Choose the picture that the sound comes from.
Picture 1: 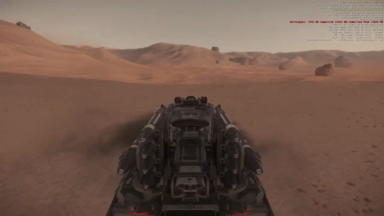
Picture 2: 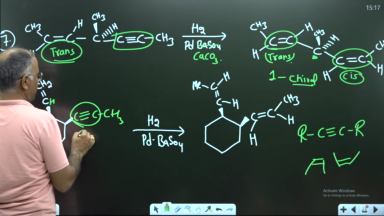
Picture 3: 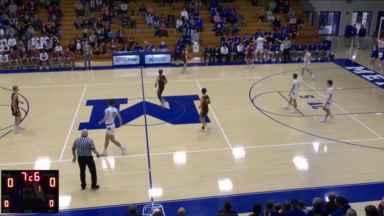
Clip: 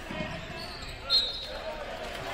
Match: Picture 3